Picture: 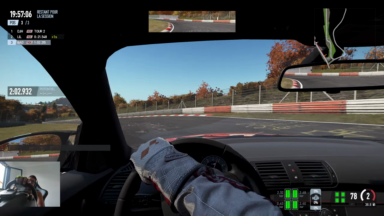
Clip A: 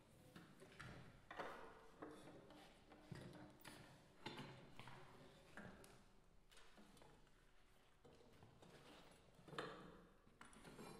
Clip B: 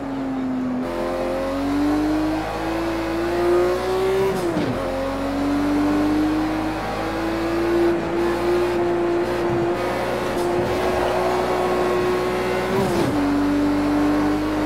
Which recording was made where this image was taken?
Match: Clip B